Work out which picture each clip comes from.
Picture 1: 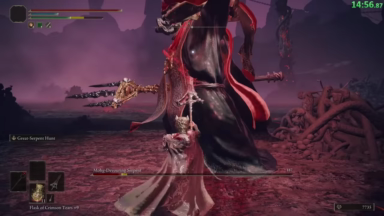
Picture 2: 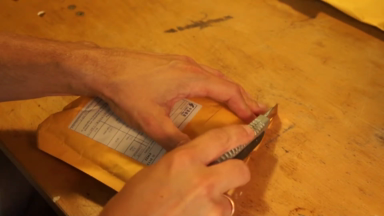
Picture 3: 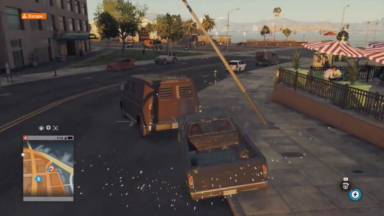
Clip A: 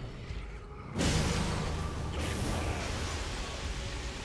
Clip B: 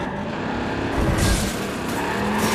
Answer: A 1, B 3